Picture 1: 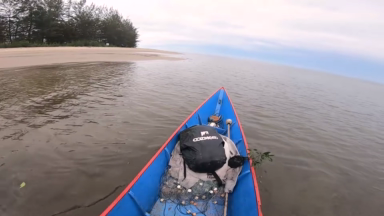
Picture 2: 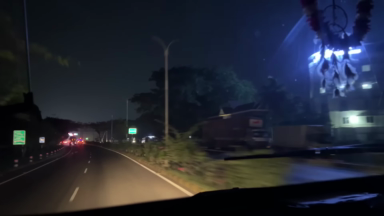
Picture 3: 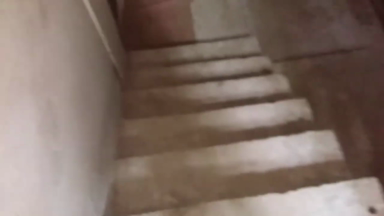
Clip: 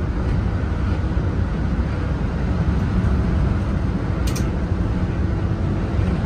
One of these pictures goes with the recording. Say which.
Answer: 2